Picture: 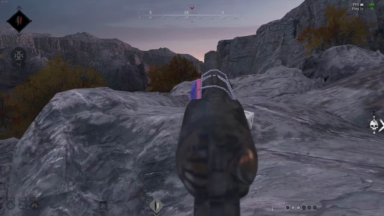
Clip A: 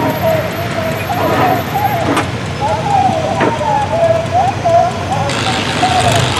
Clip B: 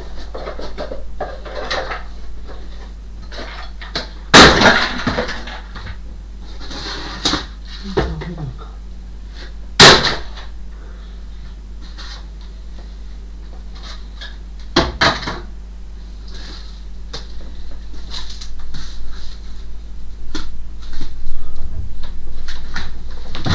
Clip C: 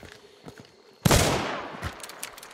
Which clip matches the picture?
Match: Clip C